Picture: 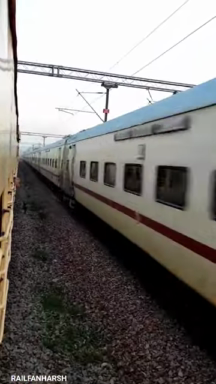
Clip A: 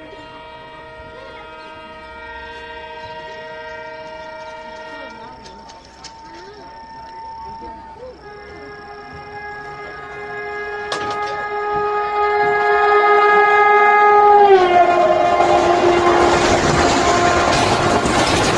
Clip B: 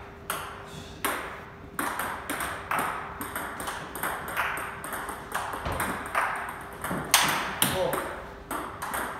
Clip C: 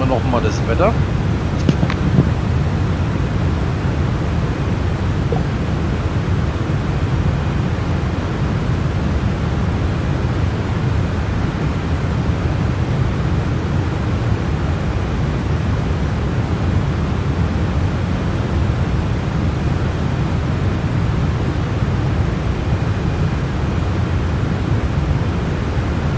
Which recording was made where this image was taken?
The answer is A